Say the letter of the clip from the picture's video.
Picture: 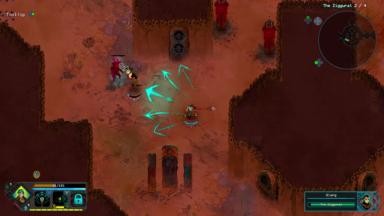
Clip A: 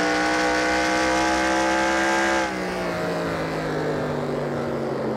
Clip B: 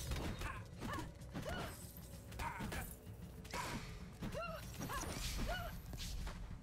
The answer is B